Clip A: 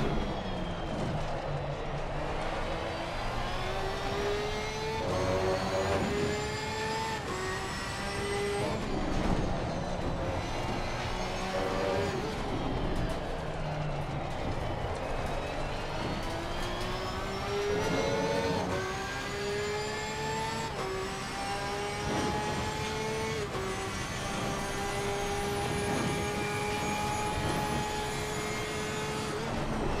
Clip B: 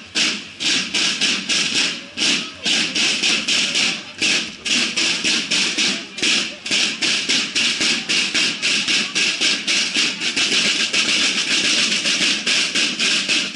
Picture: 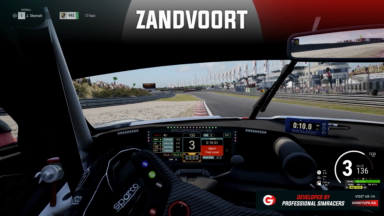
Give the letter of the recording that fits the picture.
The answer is A